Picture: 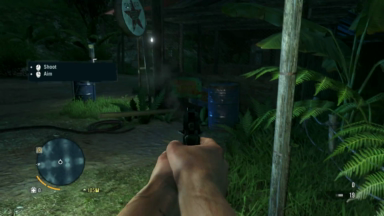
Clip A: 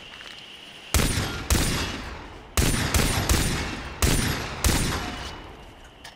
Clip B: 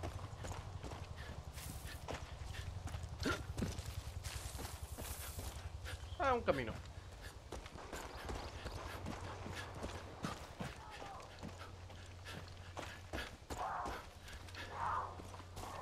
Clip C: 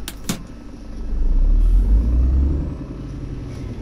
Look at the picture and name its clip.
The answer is A